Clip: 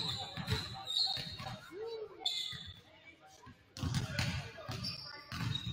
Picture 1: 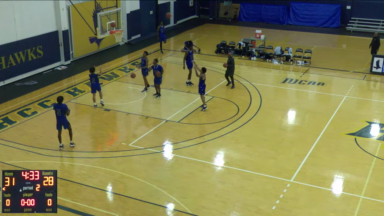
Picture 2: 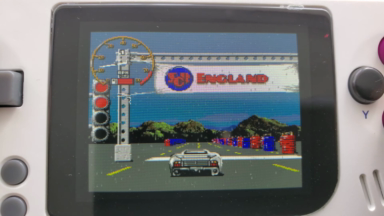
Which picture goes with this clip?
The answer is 1